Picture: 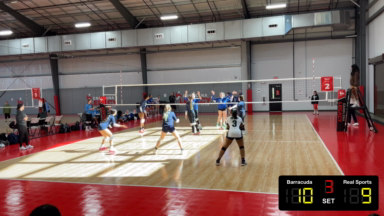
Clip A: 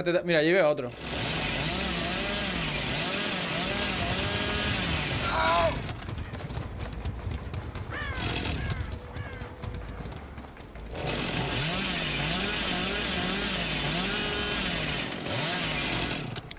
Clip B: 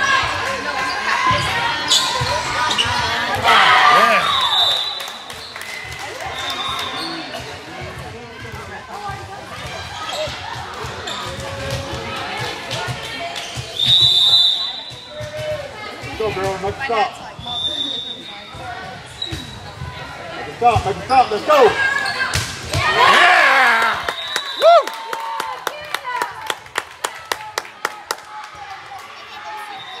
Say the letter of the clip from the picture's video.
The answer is B